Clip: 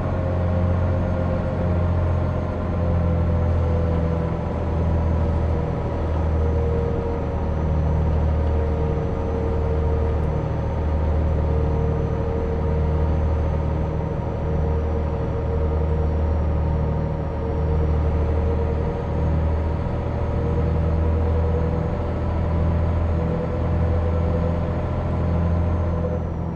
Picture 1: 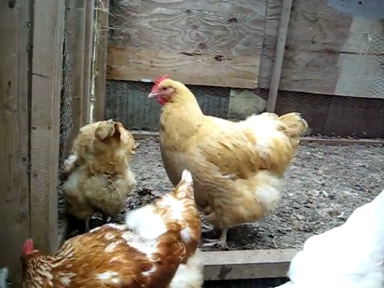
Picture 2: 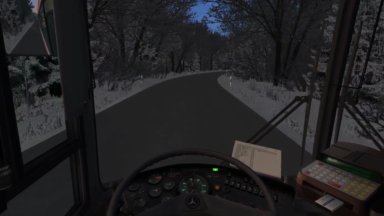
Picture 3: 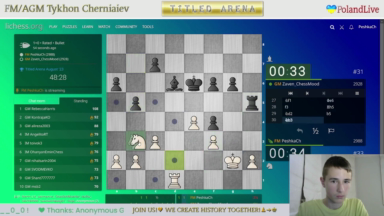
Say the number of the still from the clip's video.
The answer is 2